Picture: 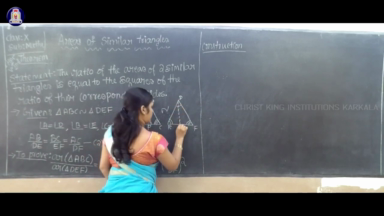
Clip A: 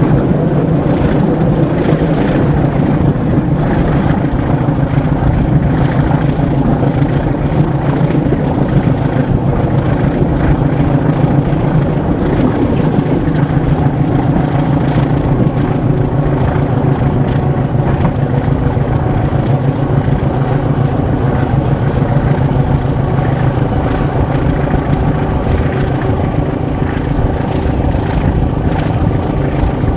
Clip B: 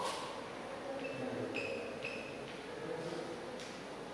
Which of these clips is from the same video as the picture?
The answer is B